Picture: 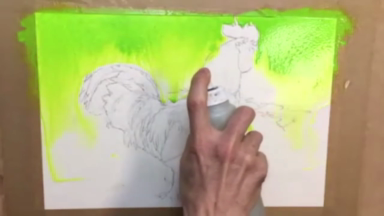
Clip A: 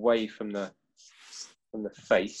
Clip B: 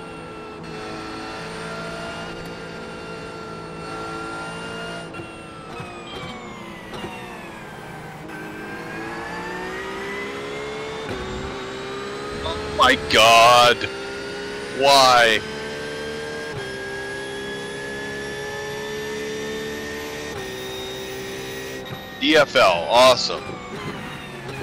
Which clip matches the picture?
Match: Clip A